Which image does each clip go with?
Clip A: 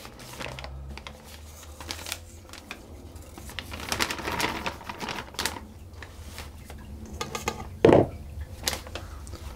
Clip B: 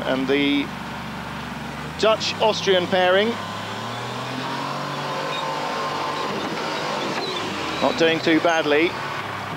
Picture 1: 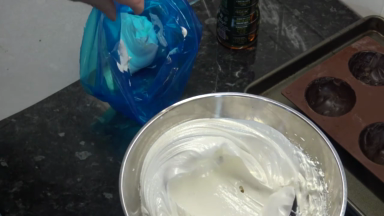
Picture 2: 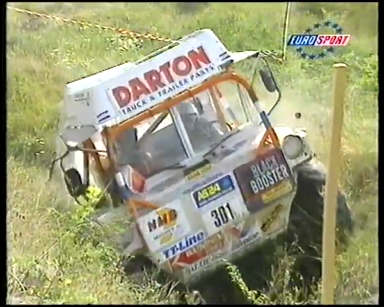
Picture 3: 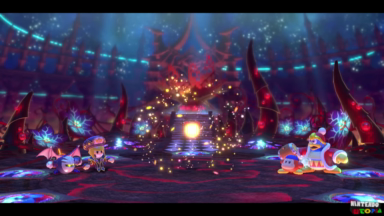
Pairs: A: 1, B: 2